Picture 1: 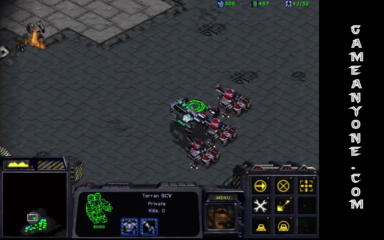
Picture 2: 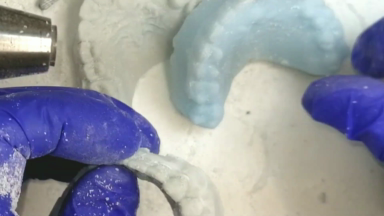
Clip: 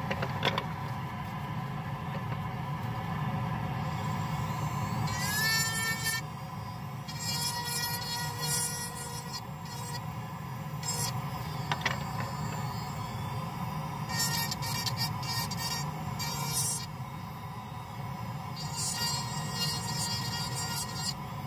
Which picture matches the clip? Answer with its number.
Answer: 2